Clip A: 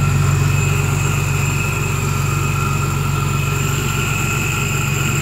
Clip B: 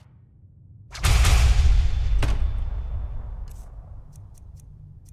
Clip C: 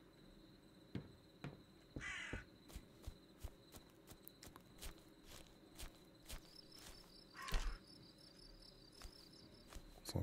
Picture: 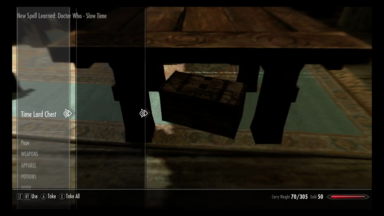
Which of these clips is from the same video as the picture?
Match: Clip B